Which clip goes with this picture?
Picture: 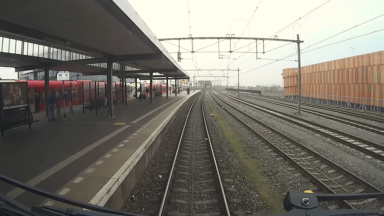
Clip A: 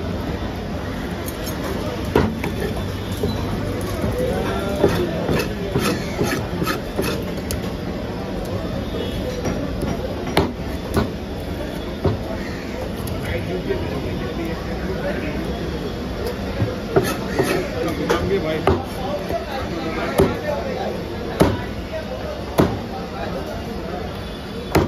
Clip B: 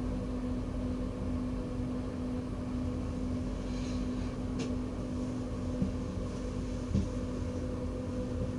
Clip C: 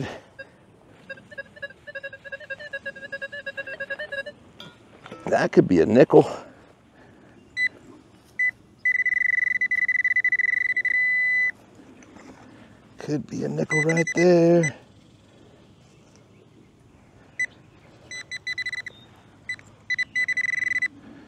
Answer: B